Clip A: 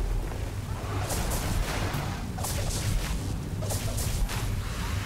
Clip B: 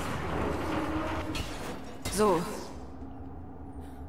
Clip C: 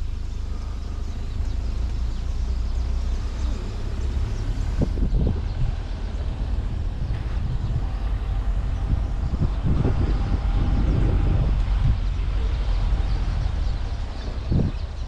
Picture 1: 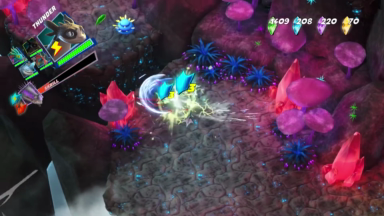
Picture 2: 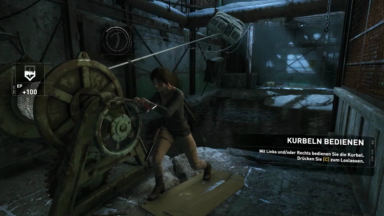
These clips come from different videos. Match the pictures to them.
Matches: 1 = A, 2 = B